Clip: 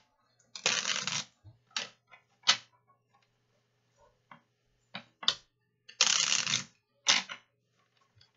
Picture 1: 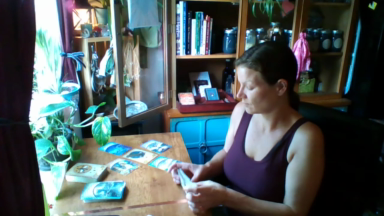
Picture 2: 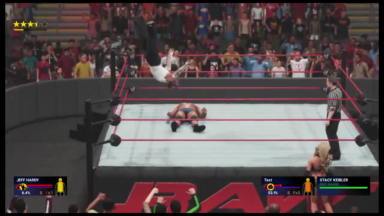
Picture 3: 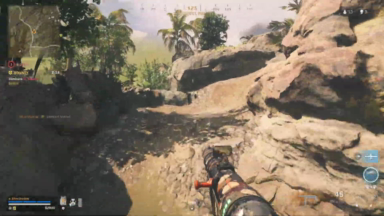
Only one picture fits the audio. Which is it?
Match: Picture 1